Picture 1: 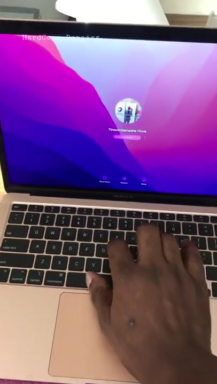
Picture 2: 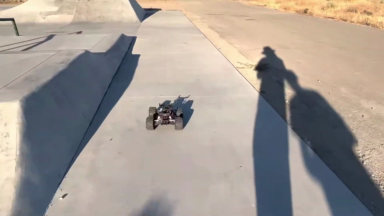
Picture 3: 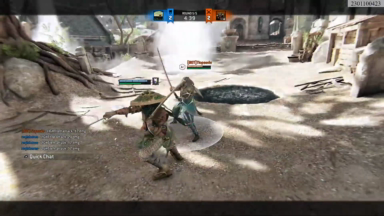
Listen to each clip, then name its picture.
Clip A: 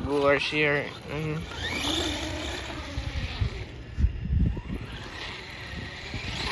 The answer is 2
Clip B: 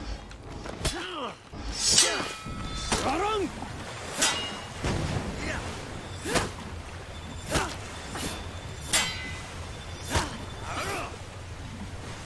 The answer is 3